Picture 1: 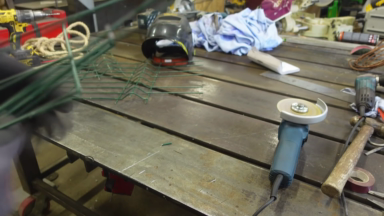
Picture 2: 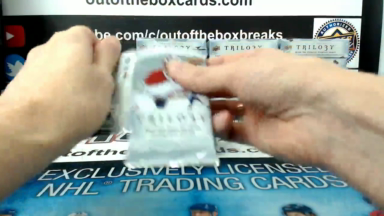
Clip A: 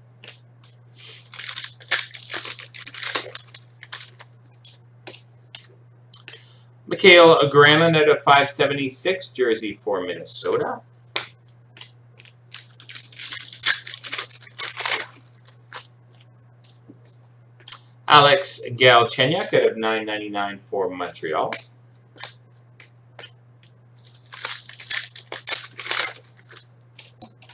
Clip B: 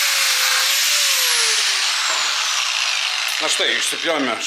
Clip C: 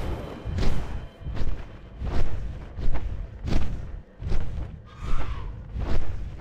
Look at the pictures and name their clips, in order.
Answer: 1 B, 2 A